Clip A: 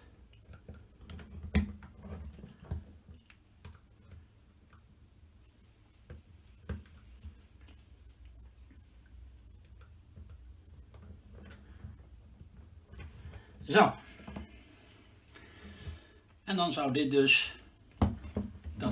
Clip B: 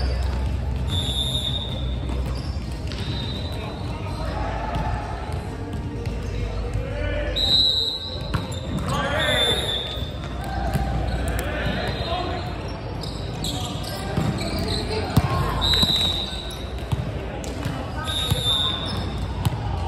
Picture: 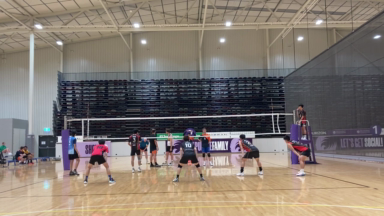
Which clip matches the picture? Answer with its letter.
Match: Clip B